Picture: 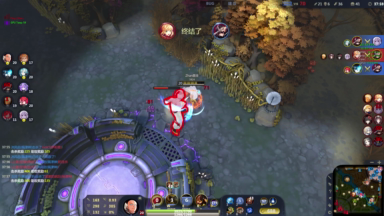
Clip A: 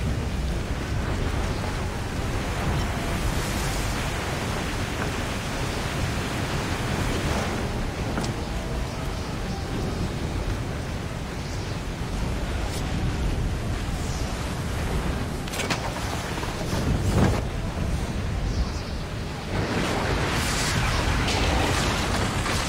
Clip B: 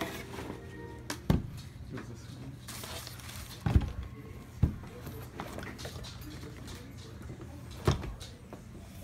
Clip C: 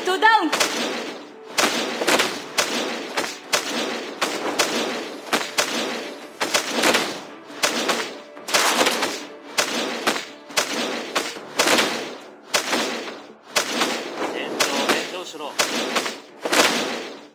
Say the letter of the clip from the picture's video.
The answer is C